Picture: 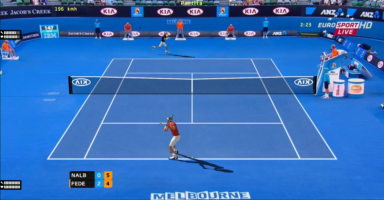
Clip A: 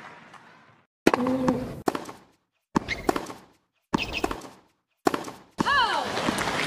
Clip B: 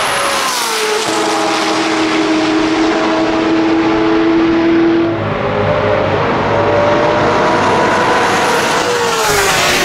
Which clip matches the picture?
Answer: A